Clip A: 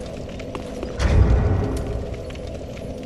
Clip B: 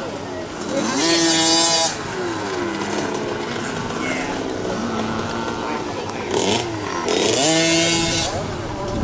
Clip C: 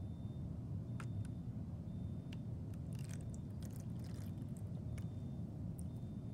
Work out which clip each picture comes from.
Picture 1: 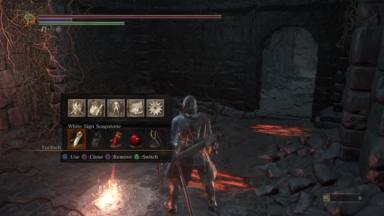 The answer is A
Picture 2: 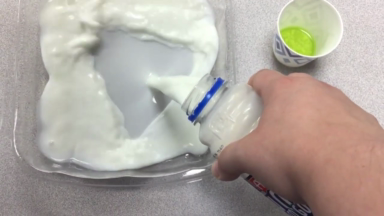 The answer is C